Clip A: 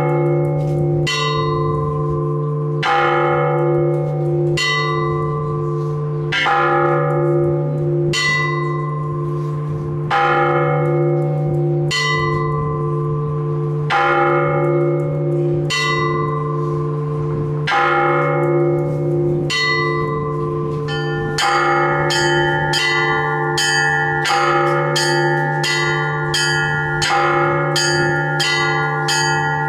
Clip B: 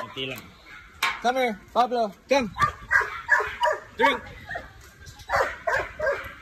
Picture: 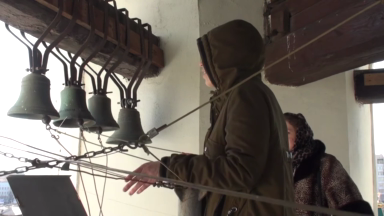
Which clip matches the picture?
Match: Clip A